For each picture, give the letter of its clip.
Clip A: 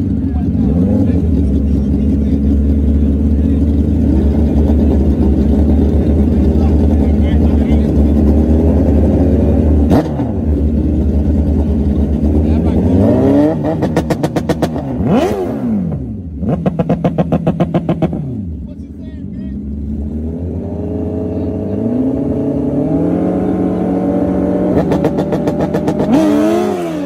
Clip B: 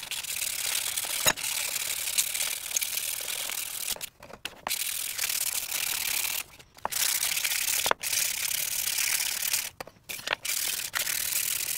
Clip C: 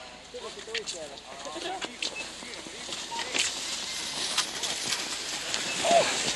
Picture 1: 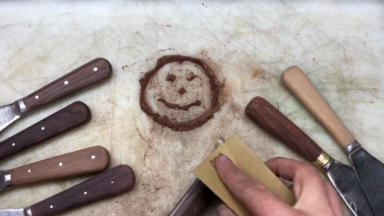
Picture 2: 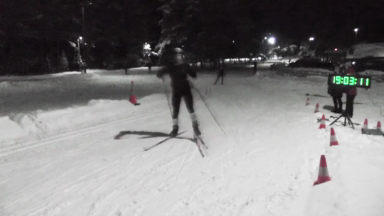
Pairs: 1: B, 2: C